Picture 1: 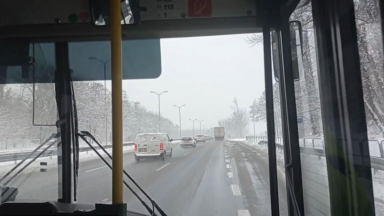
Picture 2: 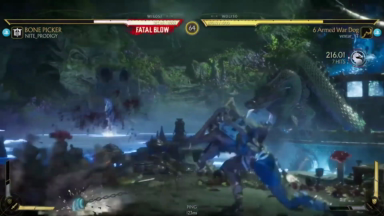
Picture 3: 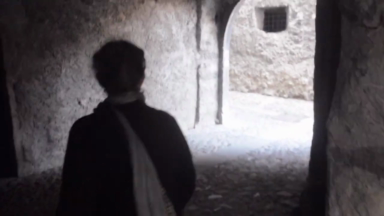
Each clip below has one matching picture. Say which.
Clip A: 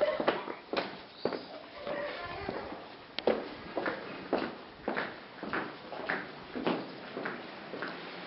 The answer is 3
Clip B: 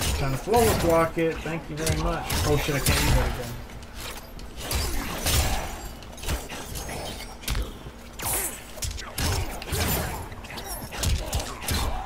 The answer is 2